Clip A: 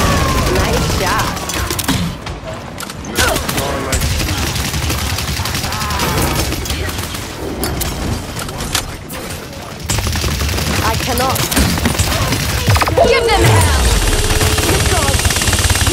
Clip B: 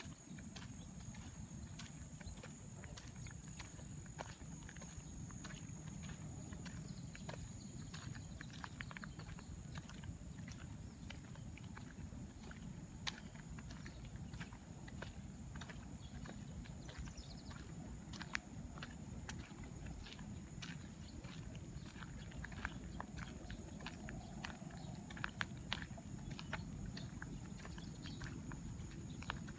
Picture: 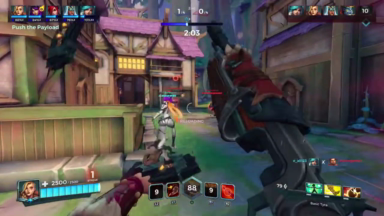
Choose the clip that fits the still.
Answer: A